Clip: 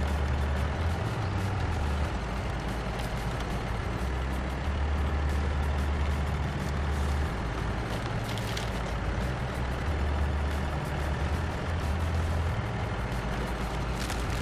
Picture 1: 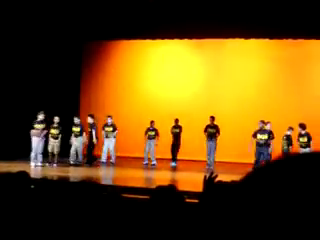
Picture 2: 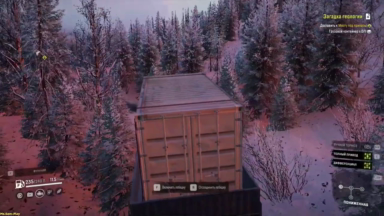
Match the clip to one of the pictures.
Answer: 2